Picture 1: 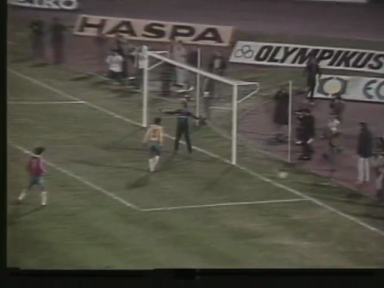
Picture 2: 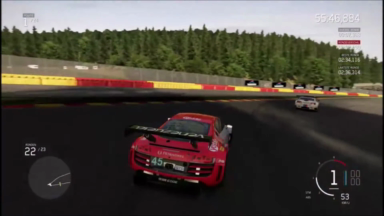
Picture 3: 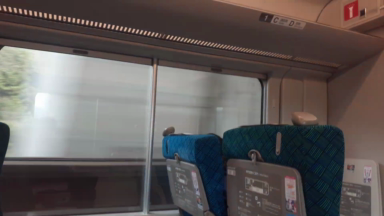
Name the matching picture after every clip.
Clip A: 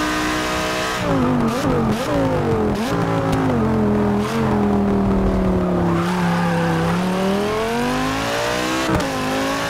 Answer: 2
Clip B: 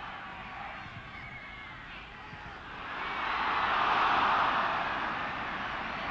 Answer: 1